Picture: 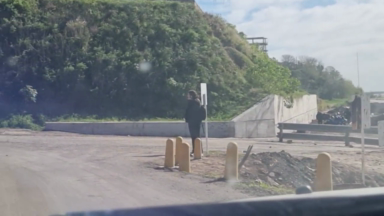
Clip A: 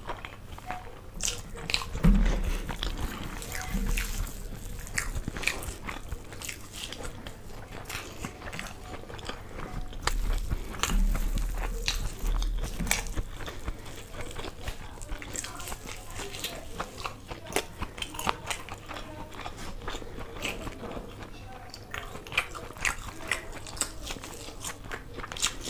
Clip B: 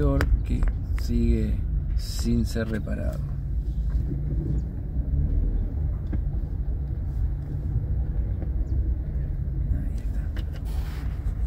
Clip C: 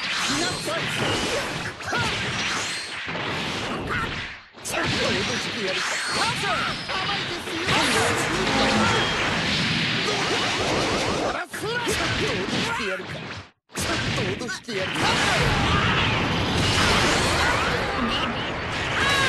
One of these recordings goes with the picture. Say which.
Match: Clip B